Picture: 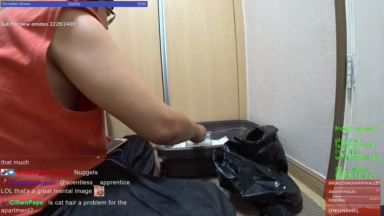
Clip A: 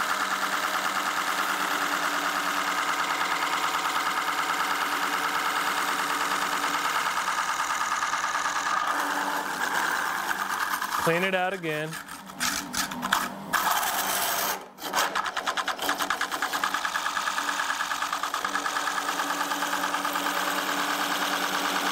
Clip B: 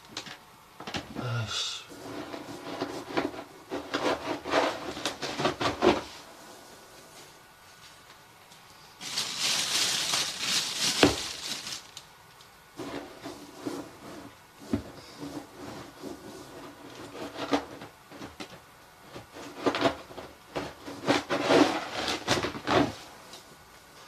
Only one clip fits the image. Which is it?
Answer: B